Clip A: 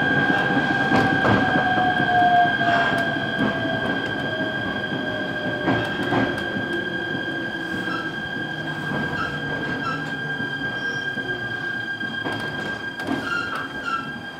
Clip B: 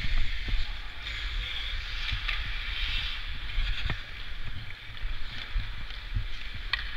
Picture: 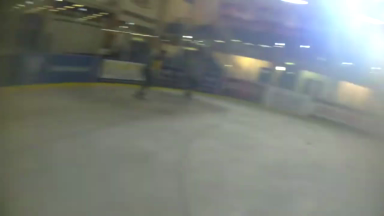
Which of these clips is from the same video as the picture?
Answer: B